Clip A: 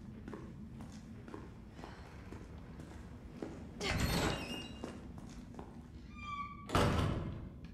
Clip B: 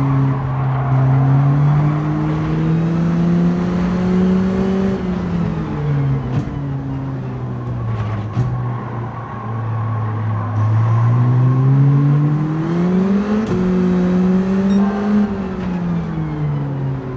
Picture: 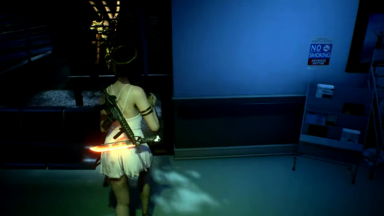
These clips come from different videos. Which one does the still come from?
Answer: A